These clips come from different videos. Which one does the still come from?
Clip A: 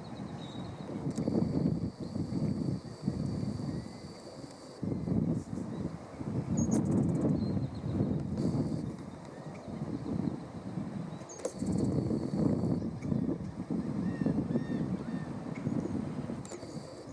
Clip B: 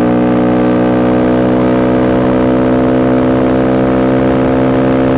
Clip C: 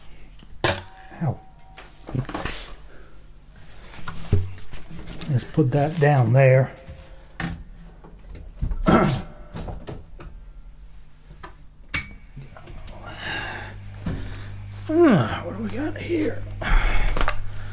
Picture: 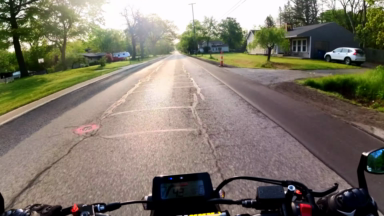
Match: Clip B